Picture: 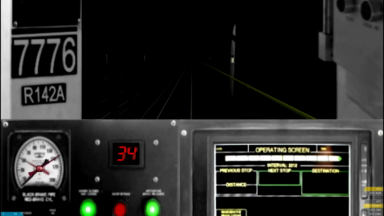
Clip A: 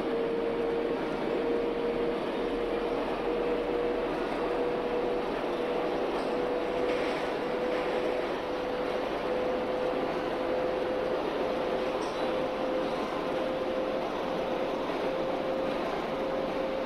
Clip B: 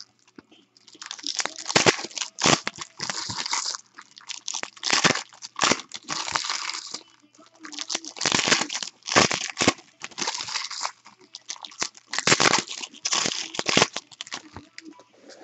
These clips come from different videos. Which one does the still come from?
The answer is A